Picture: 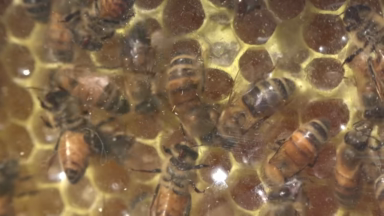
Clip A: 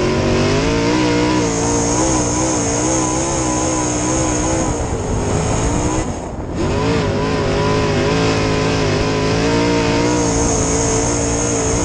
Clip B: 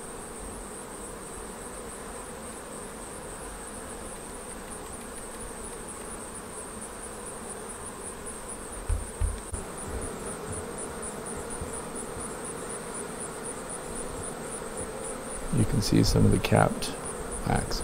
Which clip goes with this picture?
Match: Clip B